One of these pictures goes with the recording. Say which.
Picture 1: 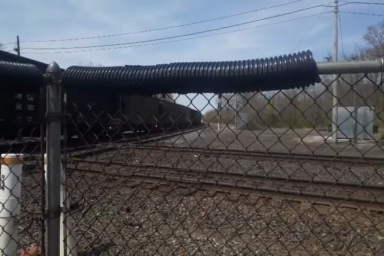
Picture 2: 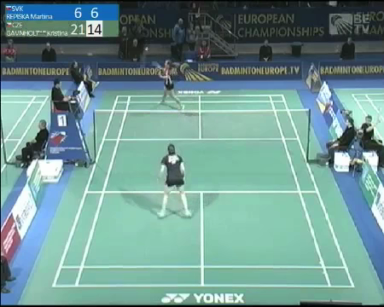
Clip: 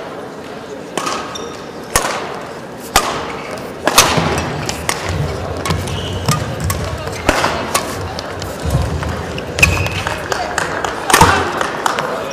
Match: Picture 2